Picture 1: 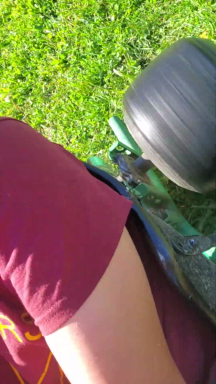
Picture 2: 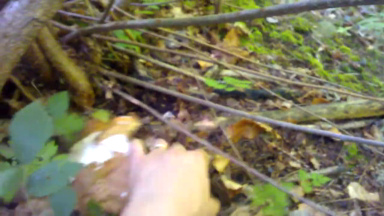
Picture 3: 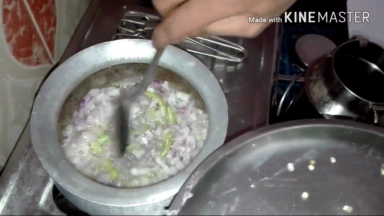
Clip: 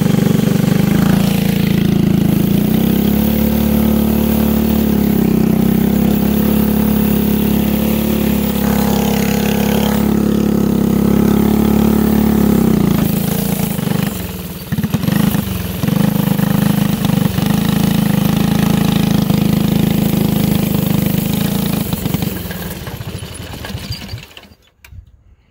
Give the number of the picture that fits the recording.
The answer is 1